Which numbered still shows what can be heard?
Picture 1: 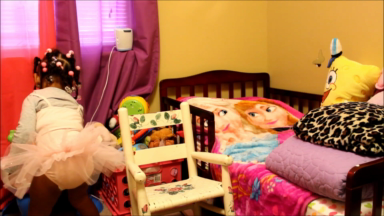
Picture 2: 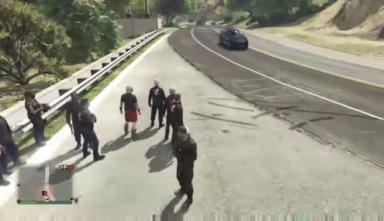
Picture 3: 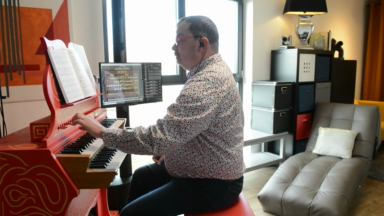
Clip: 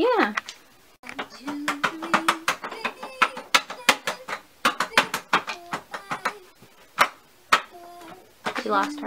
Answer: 1